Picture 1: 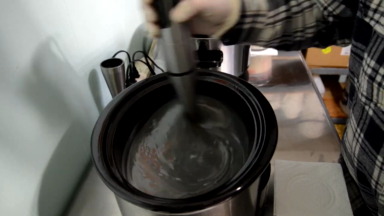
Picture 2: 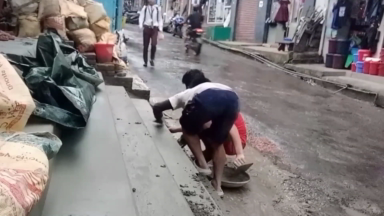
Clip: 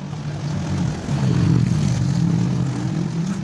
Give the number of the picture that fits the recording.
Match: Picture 2